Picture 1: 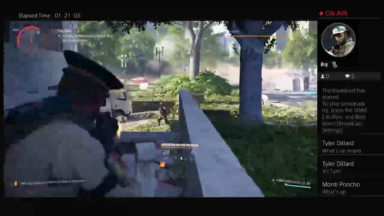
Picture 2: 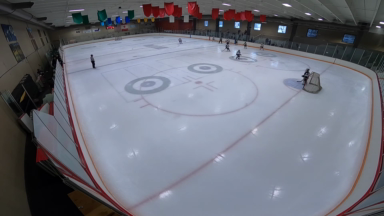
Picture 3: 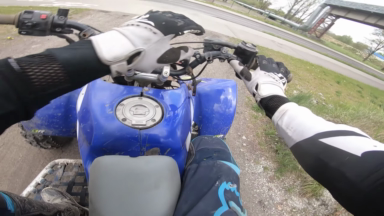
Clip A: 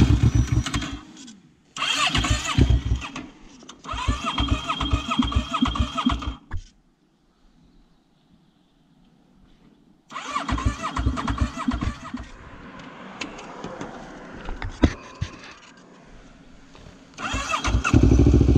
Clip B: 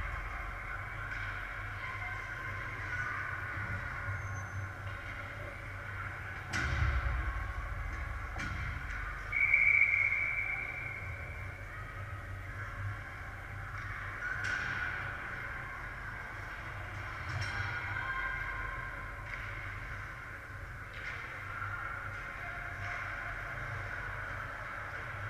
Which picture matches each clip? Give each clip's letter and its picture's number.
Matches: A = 3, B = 2